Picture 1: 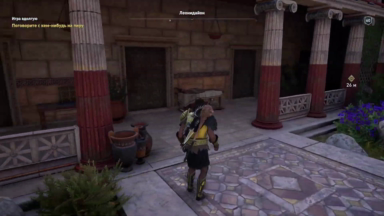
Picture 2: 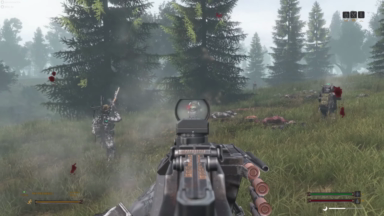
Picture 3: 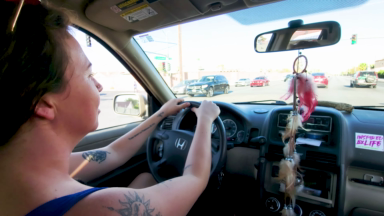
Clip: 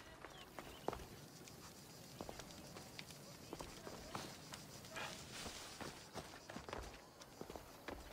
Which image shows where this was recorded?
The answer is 1